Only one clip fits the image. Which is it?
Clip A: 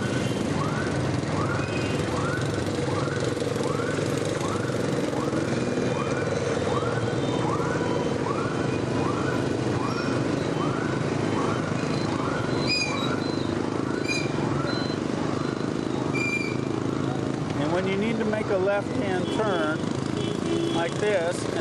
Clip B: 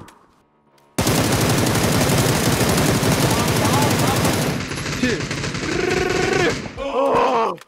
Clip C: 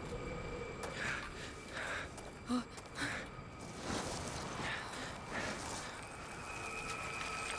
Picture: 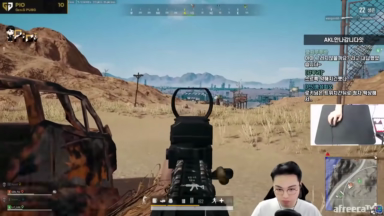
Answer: B